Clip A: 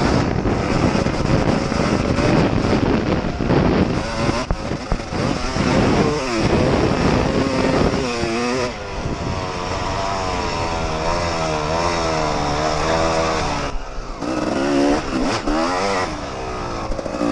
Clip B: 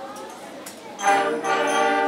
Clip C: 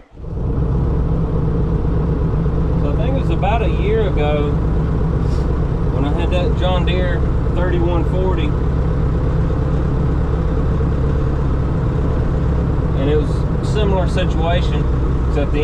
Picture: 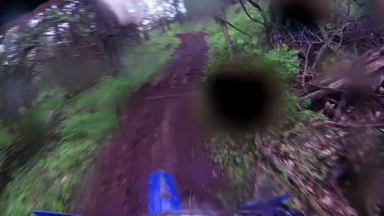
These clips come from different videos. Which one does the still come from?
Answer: A